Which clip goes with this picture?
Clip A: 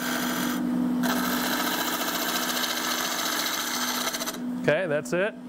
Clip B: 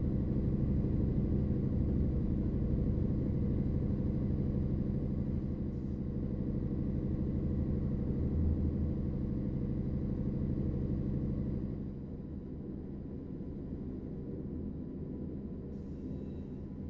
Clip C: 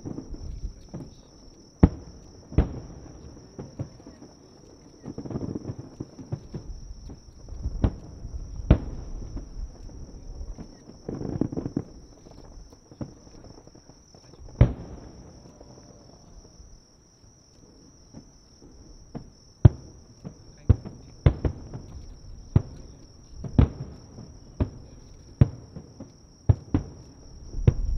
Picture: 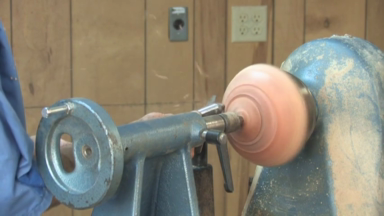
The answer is A